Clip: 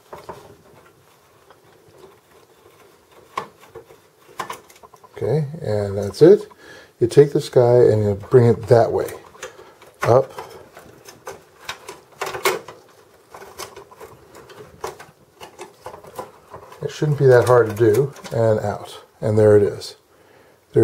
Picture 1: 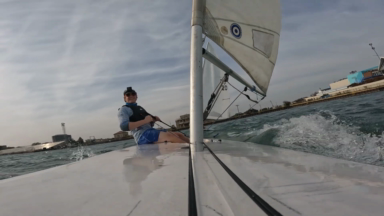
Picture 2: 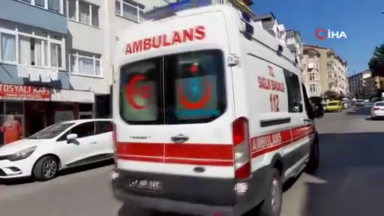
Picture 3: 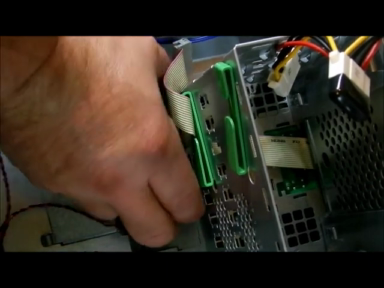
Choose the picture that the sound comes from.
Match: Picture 3